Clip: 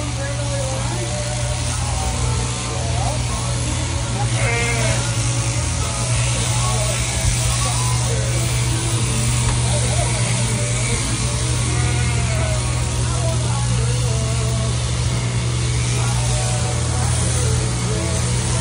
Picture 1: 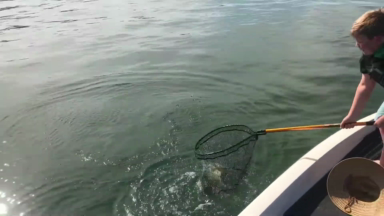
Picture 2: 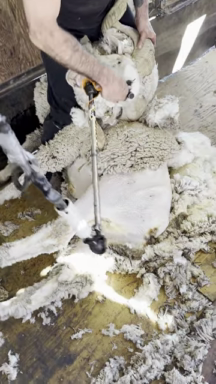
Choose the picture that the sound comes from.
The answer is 2